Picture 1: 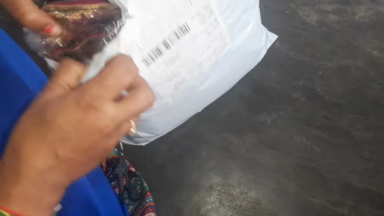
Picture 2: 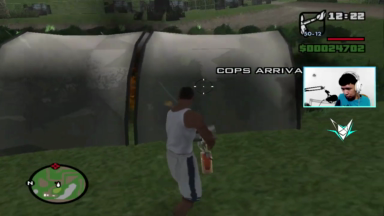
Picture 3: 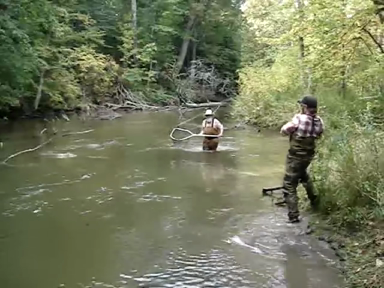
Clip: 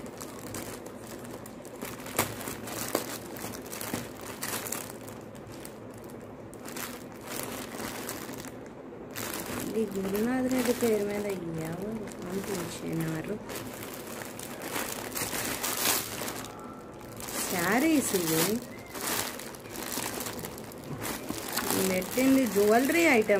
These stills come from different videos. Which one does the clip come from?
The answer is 1